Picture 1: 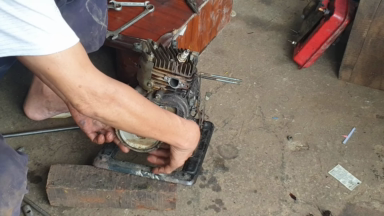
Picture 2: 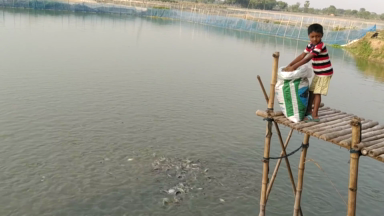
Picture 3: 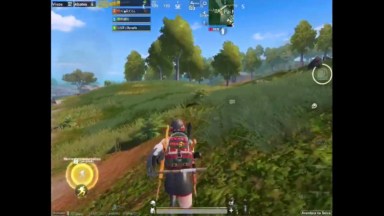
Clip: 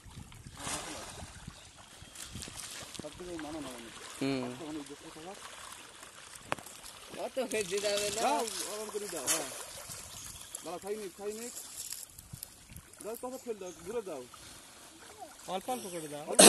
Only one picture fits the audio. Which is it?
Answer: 2